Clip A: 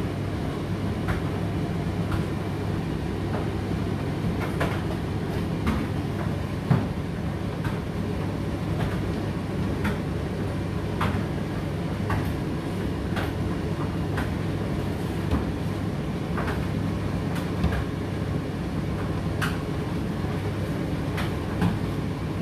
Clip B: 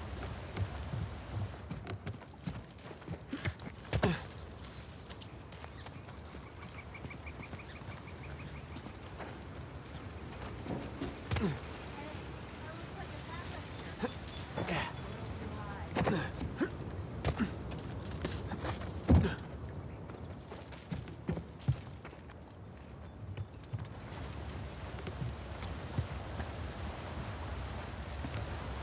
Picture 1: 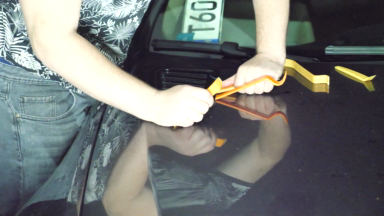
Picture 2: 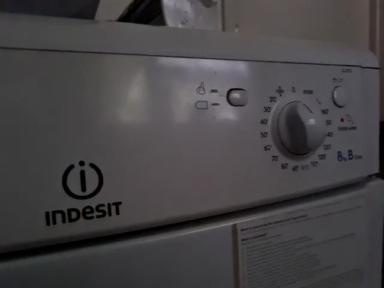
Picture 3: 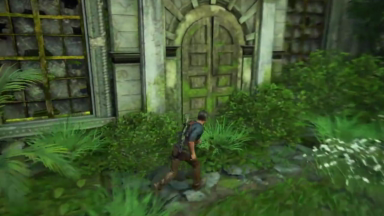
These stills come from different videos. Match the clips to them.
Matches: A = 2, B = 3